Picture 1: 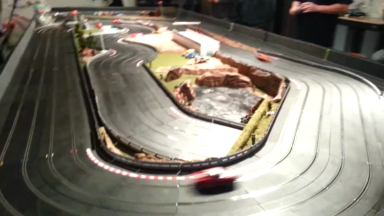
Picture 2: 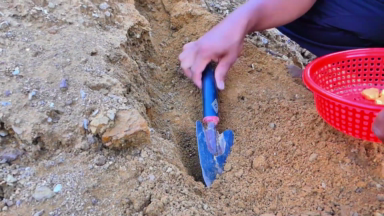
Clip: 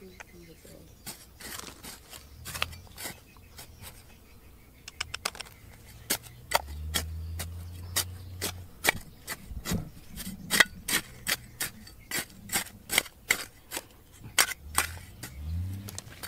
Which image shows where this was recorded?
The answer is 2